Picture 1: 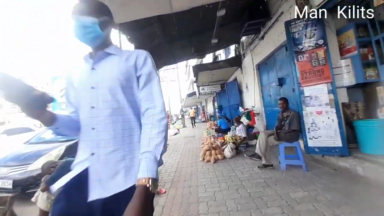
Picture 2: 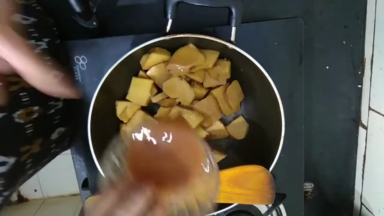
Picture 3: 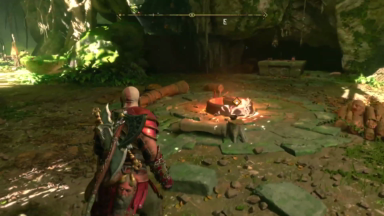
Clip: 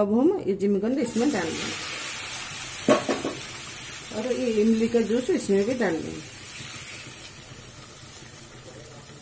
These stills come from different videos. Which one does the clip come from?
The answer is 2